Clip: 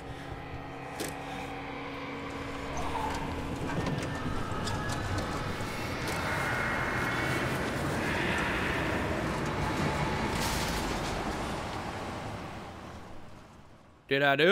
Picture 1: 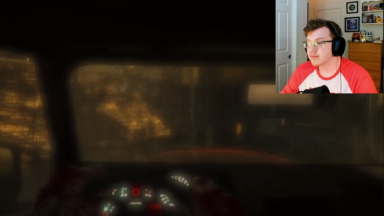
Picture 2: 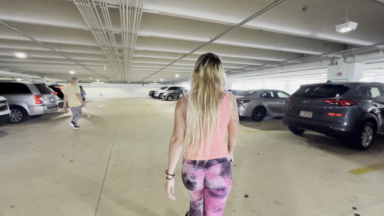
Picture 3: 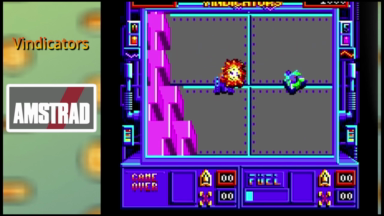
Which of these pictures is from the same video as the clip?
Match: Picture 1